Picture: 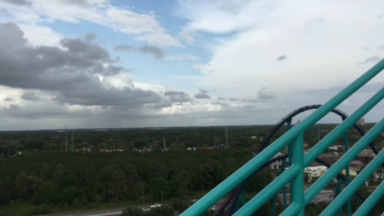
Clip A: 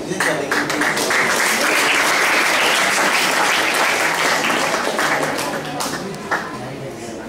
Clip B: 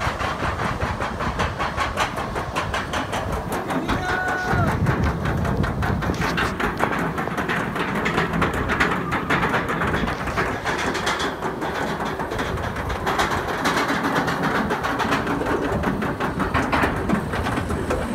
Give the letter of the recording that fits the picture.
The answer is B